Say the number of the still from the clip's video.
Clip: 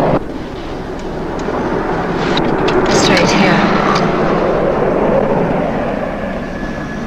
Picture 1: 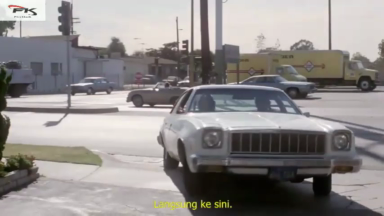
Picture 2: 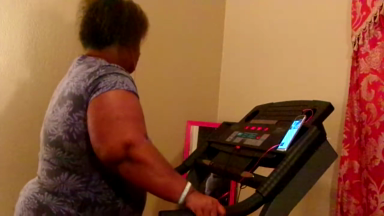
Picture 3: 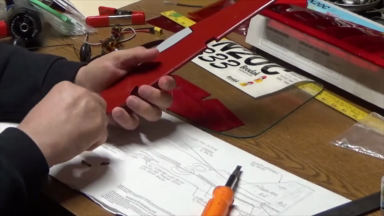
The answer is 1